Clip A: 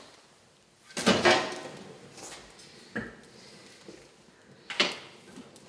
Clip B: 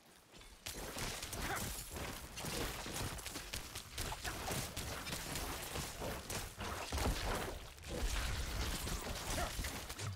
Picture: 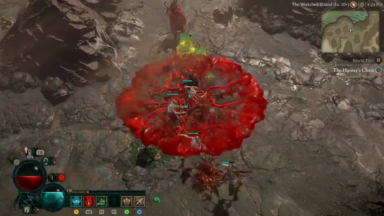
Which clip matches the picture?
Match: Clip B